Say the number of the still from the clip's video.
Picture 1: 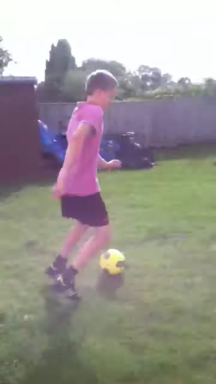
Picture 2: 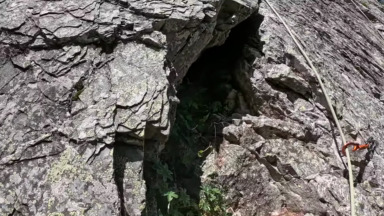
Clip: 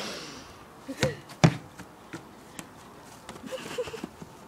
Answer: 1